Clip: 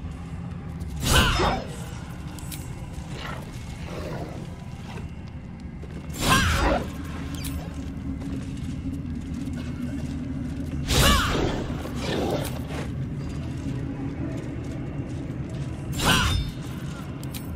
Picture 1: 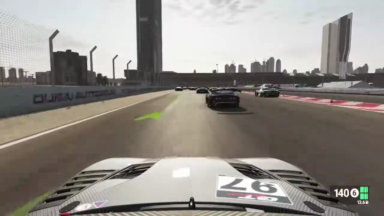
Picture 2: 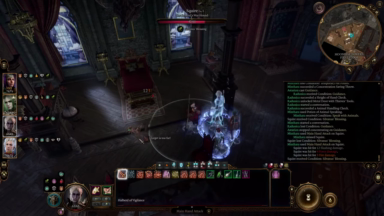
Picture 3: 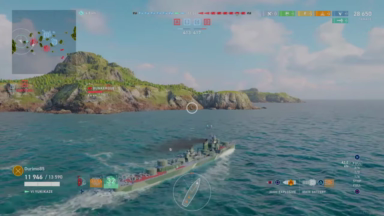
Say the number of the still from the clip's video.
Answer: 2